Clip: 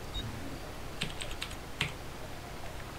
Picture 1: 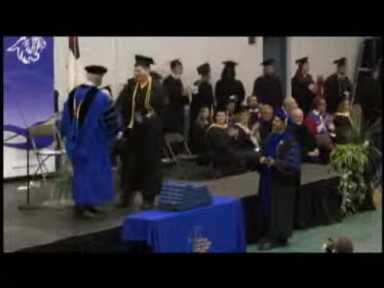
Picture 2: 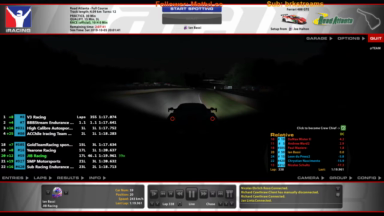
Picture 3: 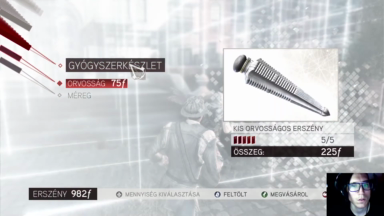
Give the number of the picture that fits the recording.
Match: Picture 3